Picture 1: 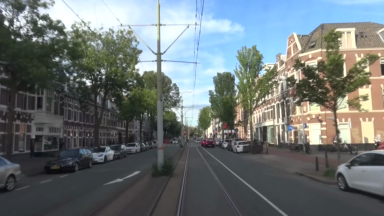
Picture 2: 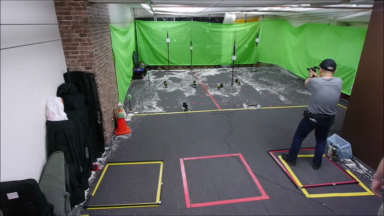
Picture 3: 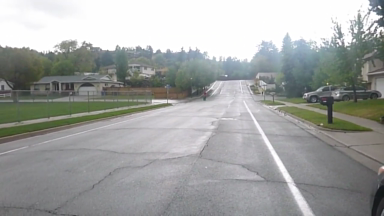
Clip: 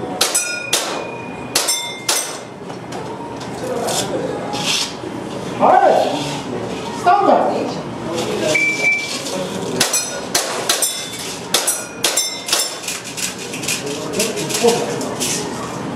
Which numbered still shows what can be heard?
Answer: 2